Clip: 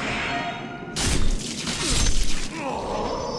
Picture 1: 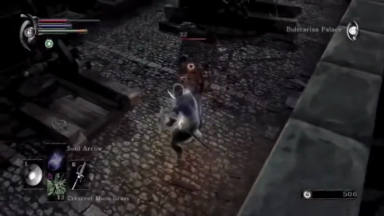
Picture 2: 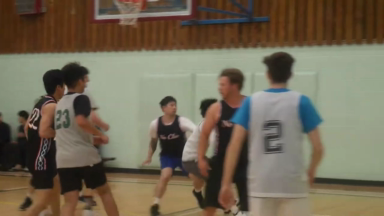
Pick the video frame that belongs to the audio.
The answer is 1